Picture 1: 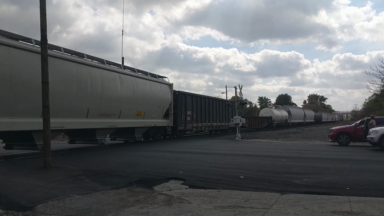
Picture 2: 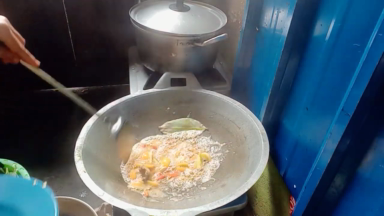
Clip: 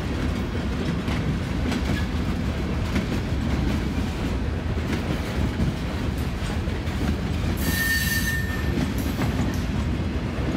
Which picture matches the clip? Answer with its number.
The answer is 1